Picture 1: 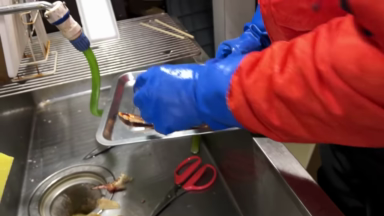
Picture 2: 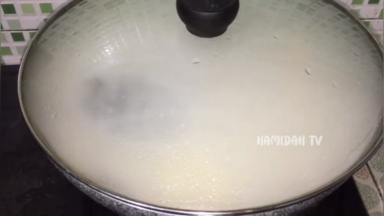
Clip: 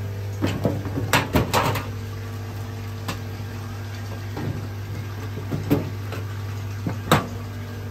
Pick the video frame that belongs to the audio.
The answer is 1